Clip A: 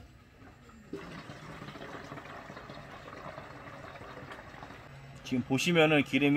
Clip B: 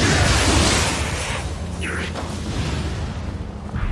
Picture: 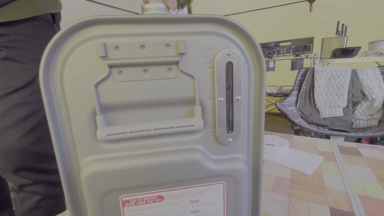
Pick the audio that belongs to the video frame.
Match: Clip A